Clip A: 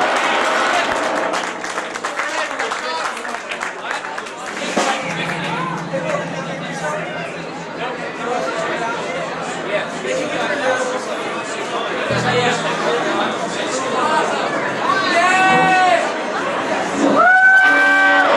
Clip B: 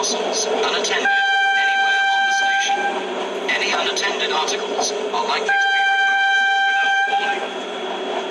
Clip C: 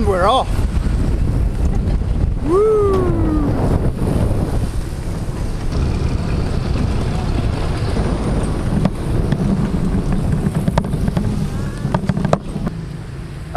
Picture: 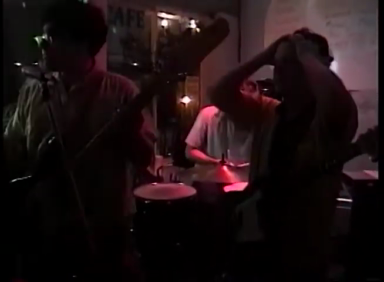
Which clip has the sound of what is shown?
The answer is A